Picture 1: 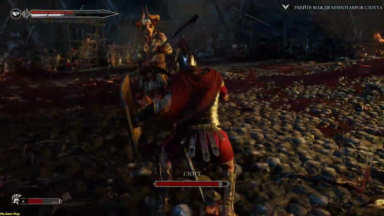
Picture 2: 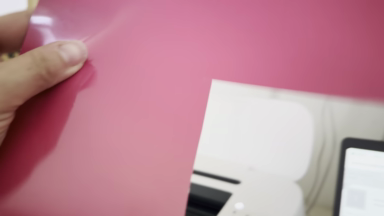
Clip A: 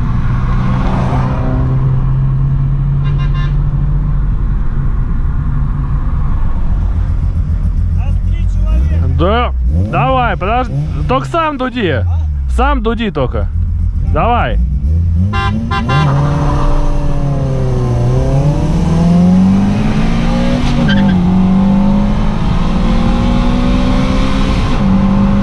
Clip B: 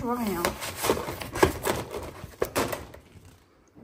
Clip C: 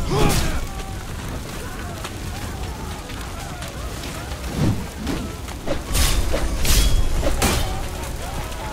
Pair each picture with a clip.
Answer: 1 C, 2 B